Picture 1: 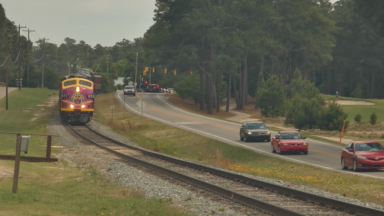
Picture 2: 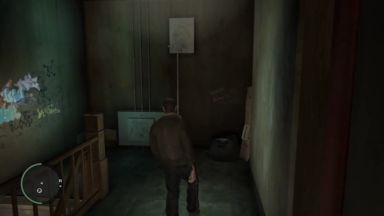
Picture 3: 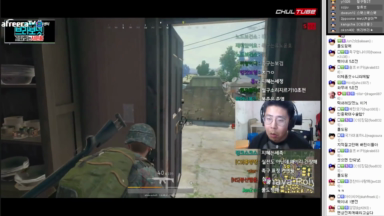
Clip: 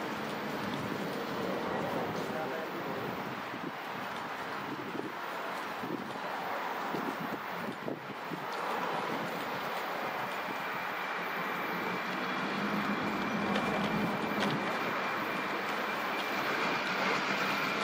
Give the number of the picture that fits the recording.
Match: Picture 1